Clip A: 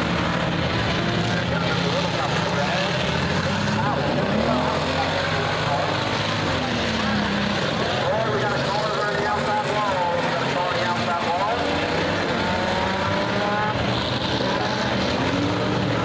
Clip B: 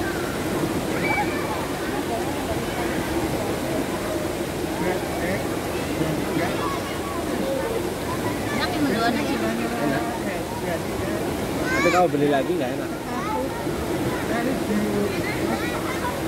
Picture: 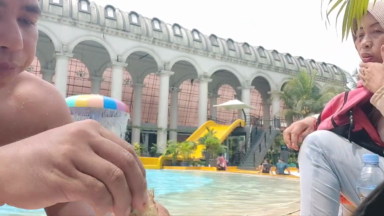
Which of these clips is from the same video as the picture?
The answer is B